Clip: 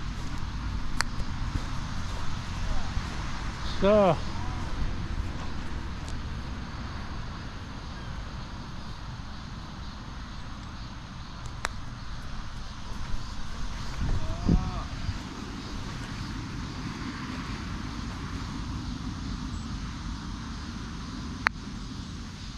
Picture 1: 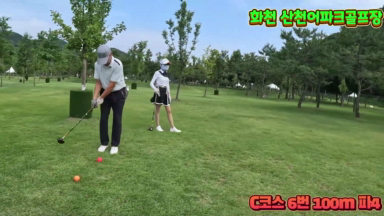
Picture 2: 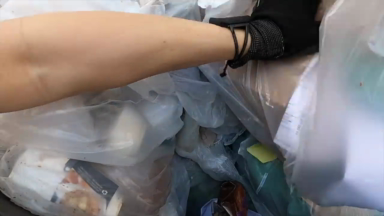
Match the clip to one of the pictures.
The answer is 1